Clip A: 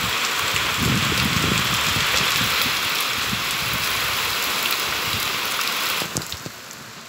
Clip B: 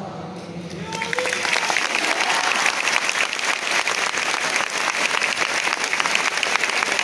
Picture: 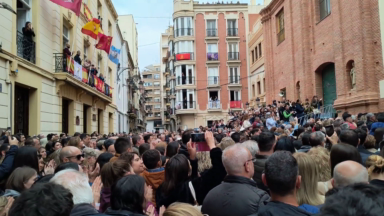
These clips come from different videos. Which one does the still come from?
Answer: B